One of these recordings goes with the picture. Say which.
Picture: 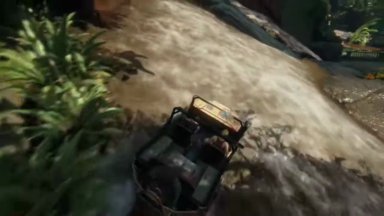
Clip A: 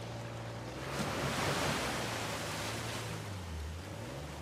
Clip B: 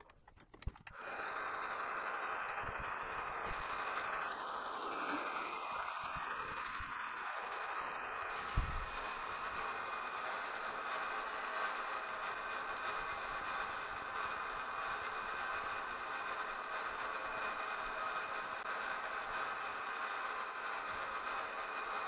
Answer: A